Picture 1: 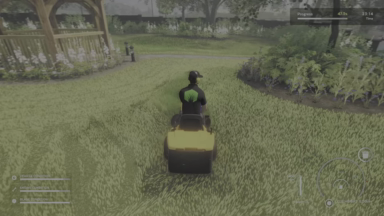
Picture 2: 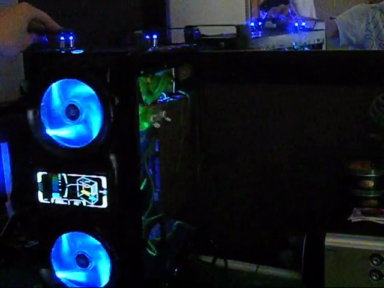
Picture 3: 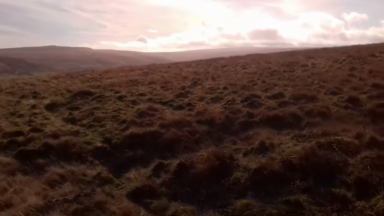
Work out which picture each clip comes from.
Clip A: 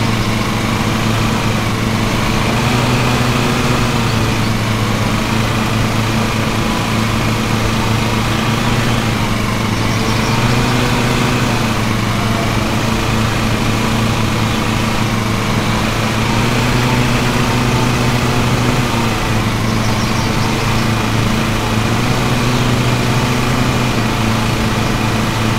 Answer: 1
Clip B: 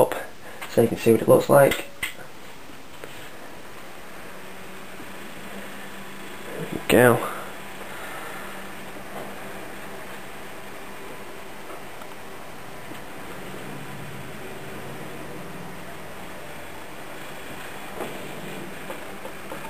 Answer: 2